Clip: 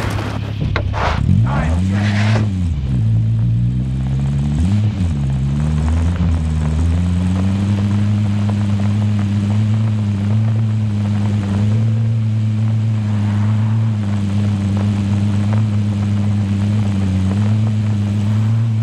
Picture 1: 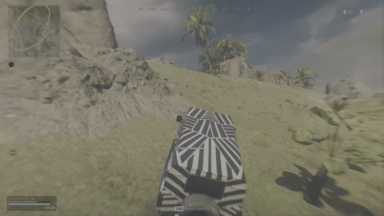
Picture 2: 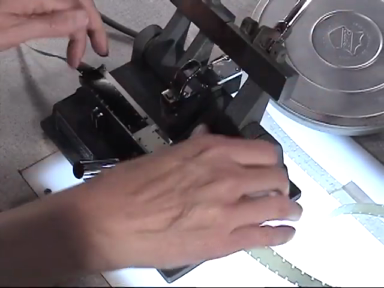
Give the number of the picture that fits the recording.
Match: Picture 1